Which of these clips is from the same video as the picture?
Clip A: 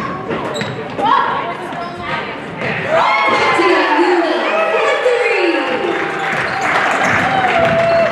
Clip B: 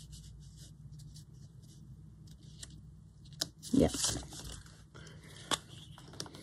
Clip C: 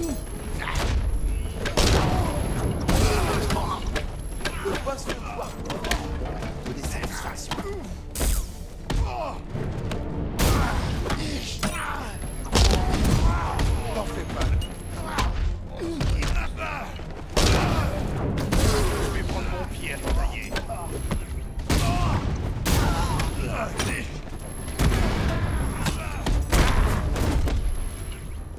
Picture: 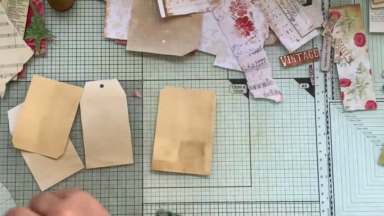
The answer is B